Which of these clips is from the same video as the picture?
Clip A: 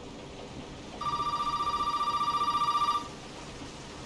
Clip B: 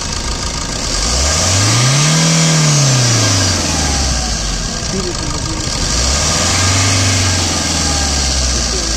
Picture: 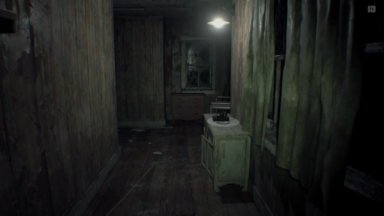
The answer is A